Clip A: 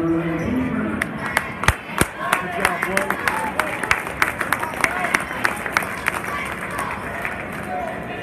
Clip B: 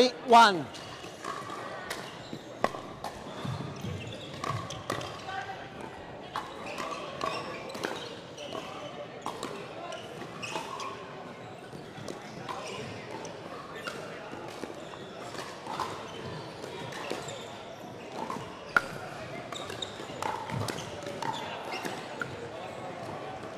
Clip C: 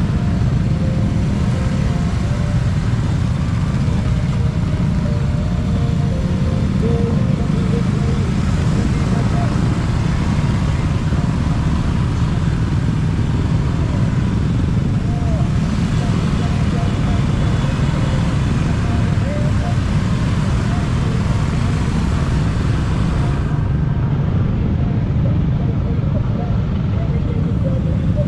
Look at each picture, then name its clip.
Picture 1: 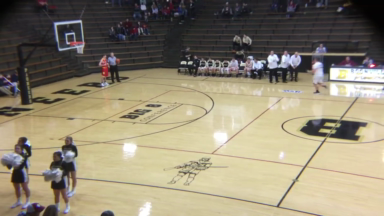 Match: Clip A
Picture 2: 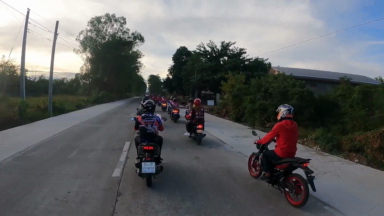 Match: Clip C